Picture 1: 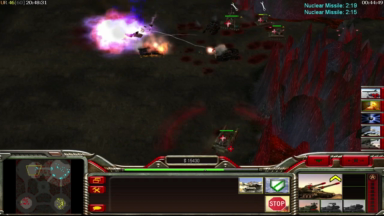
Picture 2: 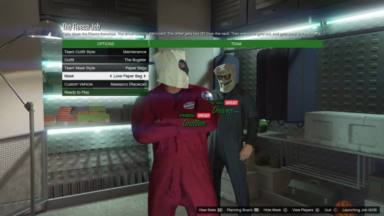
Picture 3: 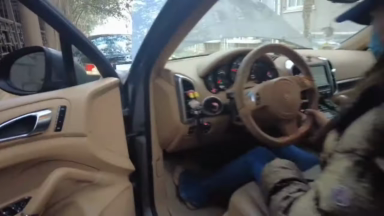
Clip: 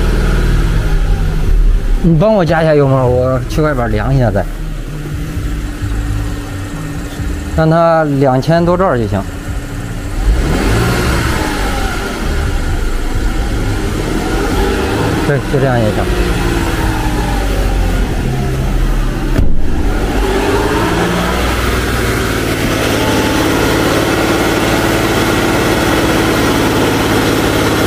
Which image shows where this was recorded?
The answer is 3